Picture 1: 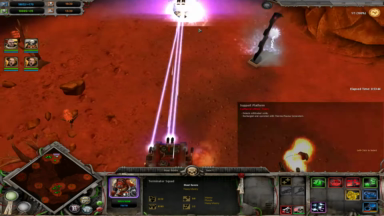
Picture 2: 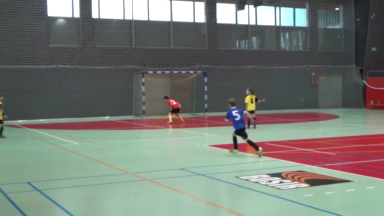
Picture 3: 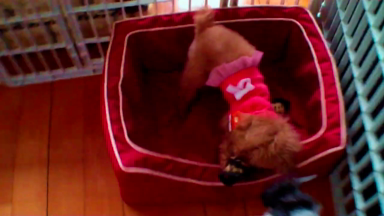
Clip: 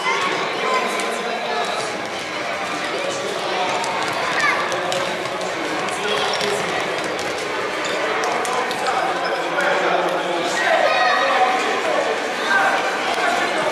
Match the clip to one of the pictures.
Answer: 2